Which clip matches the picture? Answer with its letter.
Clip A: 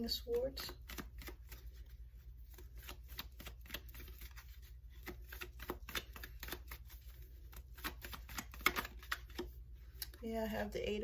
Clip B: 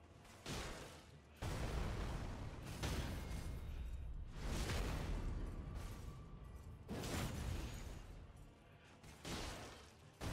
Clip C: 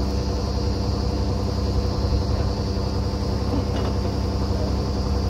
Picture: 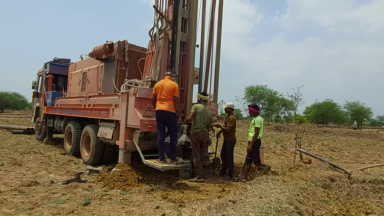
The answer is C